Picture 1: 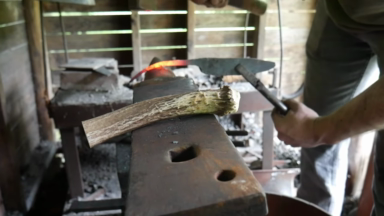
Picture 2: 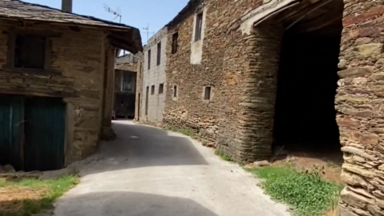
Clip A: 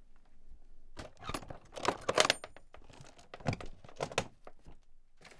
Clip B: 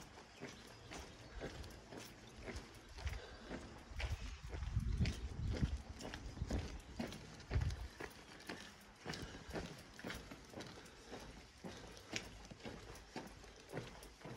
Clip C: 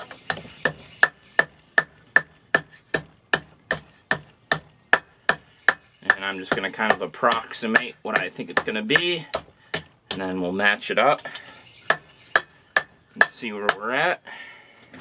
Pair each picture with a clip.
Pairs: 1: C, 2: B